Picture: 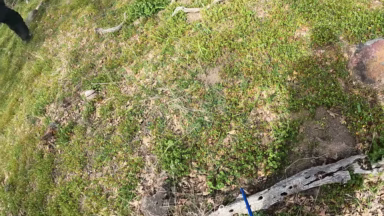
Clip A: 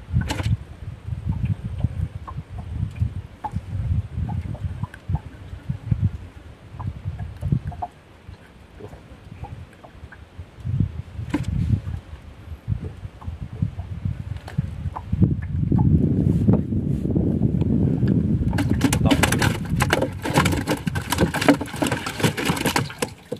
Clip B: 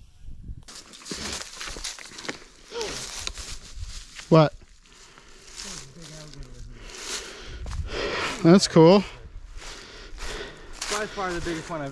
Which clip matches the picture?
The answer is B